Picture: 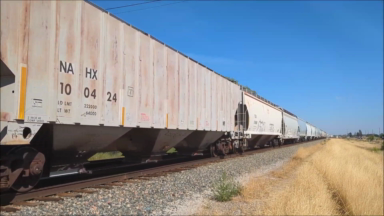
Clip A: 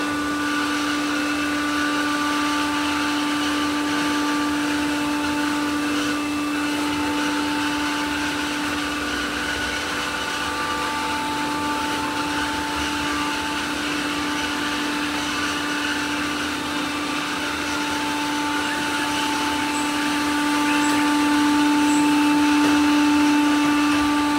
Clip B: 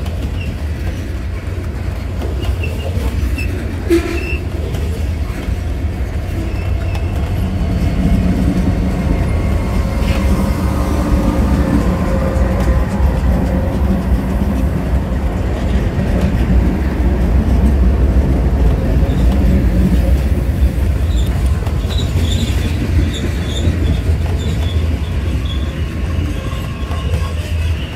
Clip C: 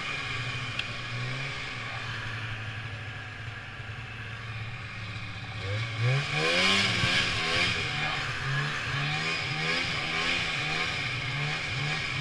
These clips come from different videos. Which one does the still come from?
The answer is B